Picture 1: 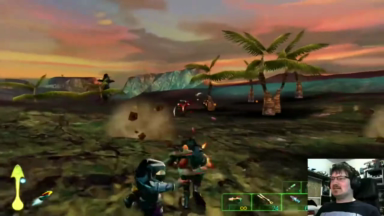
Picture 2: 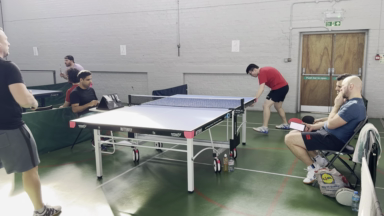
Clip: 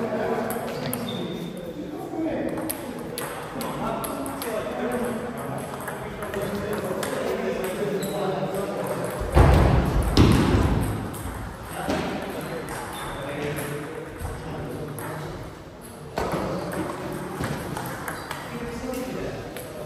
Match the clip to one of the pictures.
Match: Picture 2